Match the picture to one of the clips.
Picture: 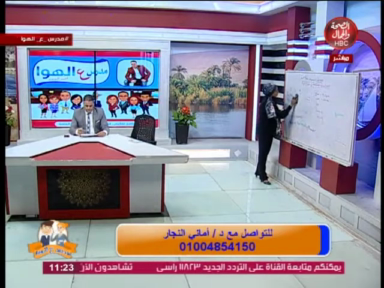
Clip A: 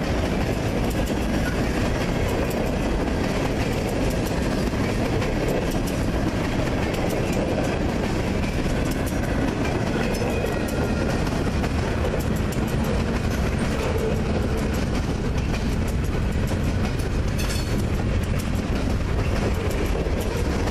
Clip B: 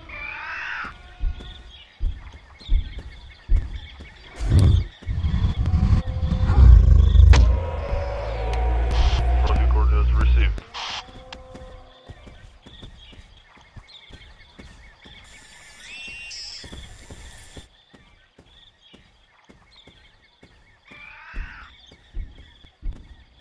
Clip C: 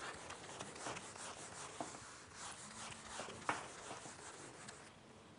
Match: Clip C